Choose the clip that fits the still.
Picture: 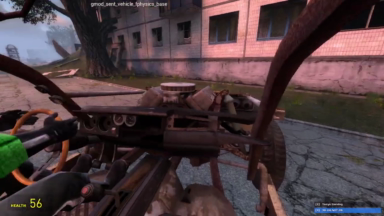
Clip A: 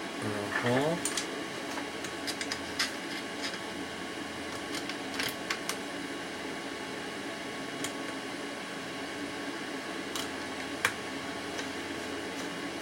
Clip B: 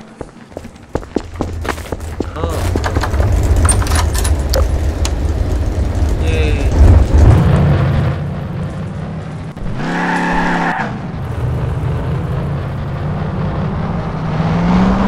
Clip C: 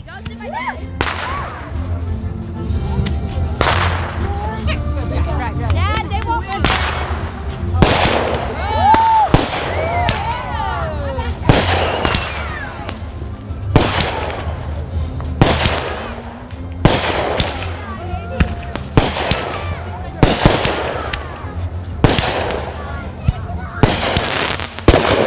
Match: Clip B